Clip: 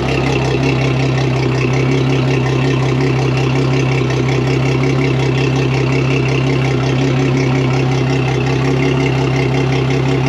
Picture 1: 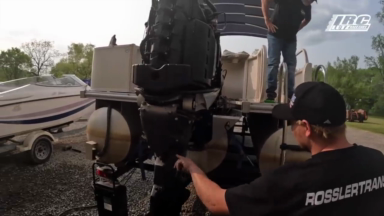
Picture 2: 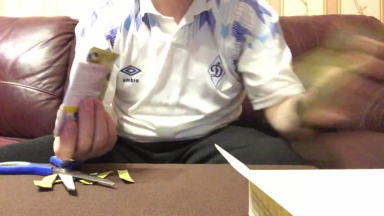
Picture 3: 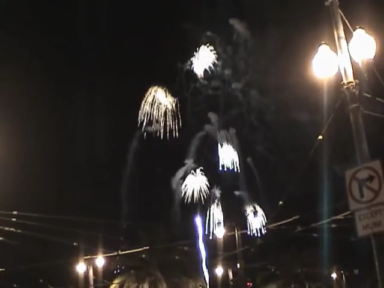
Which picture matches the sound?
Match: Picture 1